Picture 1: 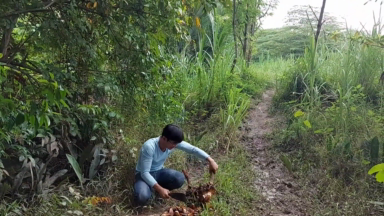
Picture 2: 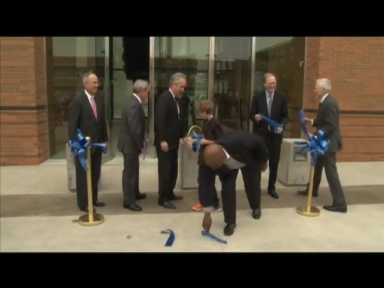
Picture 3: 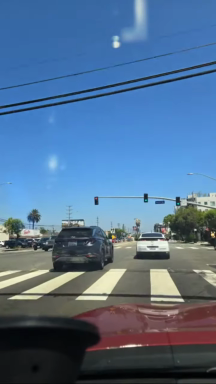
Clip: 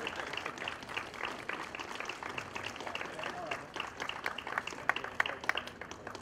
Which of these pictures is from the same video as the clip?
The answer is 2